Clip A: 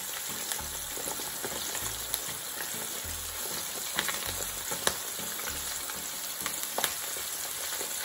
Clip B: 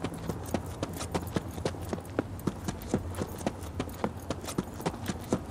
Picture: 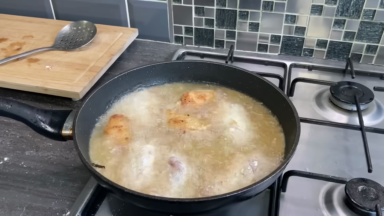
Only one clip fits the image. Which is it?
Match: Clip A